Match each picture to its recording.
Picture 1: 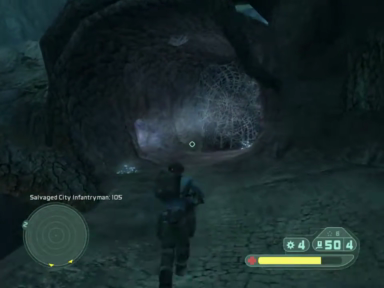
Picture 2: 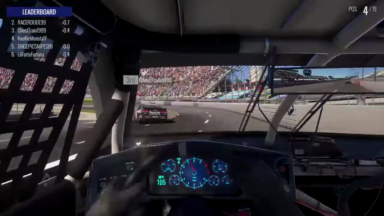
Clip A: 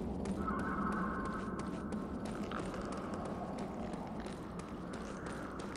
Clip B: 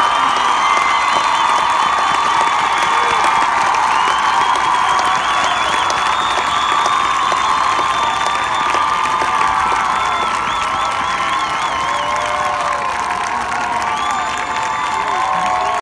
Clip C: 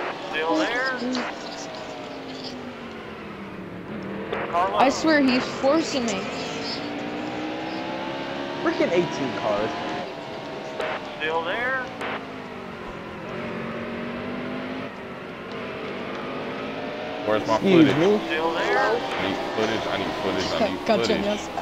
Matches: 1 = A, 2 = C